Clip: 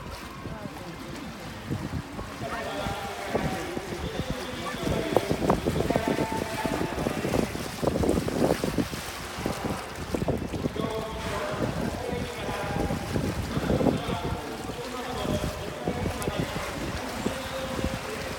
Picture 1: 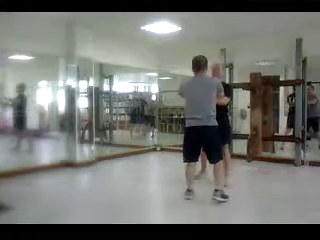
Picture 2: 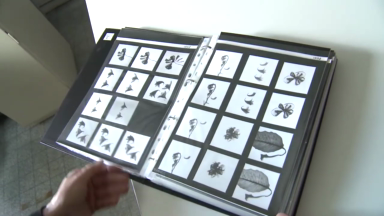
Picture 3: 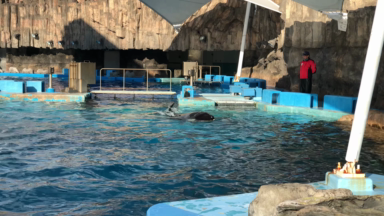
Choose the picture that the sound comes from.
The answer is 3